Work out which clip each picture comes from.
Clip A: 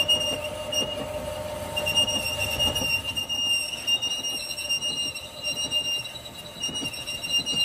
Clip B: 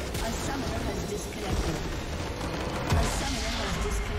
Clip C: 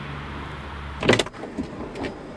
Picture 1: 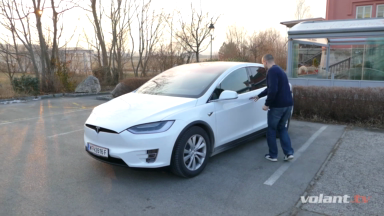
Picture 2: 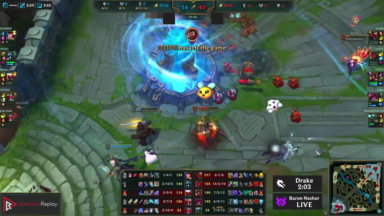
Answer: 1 C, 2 B